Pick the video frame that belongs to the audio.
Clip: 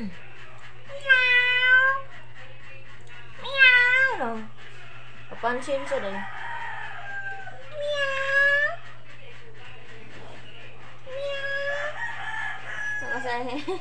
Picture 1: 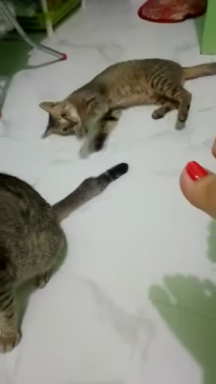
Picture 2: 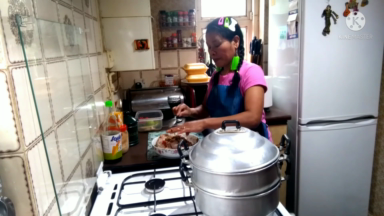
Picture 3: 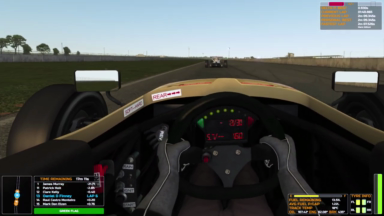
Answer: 1